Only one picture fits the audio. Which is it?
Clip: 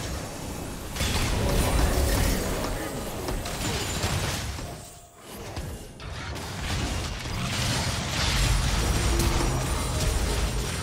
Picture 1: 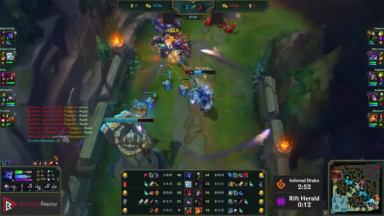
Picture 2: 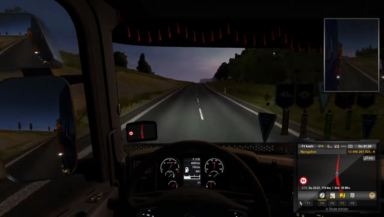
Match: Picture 1